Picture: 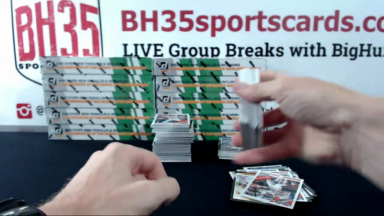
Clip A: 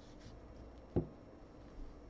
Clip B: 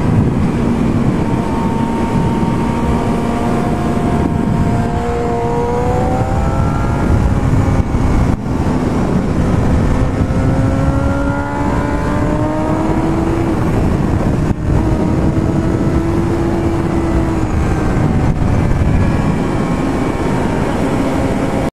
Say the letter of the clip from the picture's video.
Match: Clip A